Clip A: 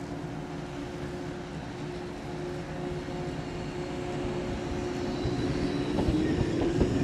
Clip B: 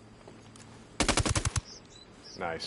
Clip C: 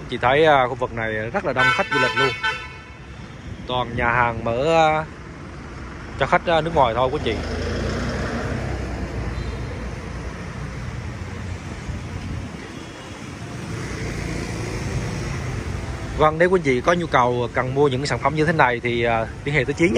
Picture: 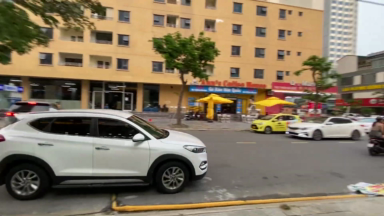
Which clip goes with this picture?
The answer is C